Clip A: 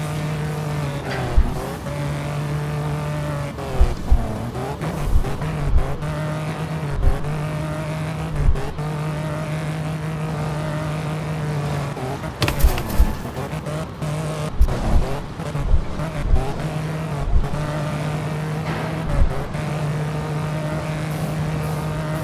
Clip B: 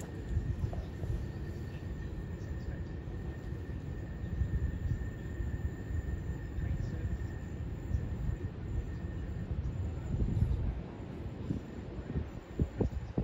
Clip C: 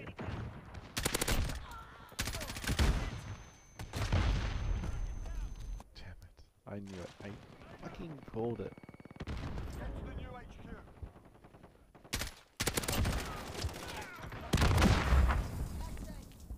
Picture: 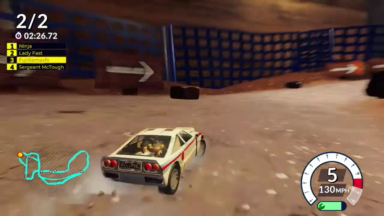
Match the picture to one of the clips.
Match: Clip A